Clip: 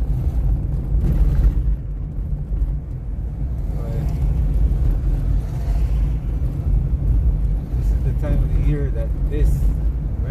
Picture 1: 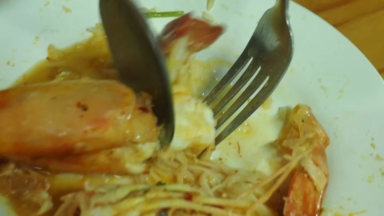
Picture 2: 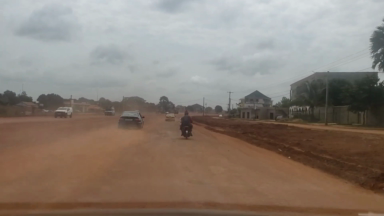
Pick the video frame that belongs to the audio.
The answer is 2